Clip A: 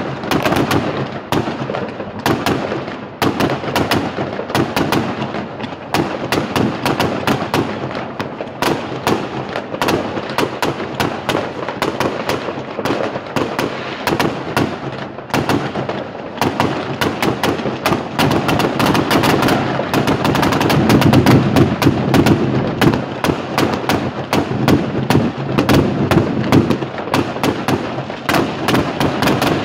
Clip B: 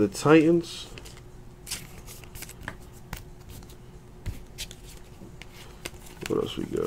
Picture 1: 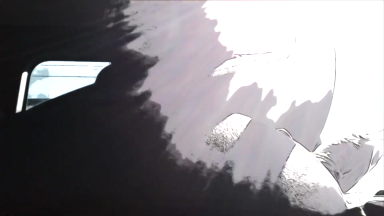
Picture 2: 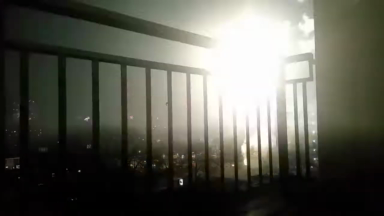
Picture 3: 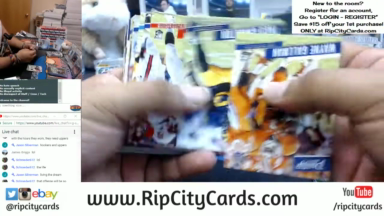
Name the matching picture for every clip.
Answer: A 2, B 3